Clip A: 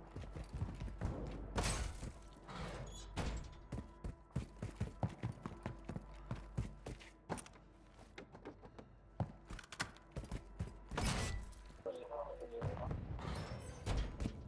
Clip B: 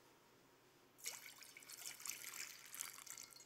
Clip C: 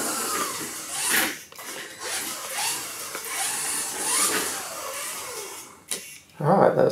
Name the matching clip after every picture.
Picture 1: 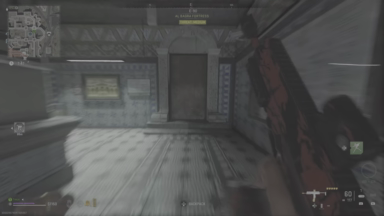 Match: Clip A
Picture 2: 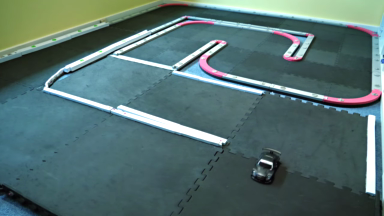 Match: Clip C